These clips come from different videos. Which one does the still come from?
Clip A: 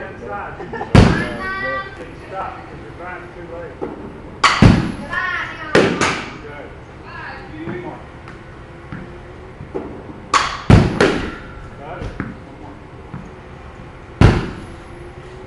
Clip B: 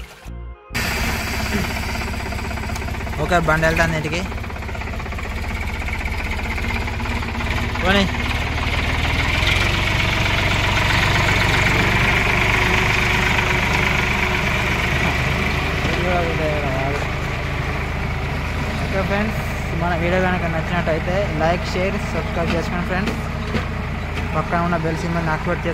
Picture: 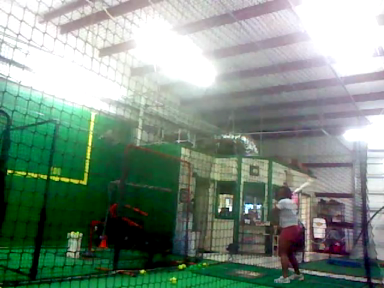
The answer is A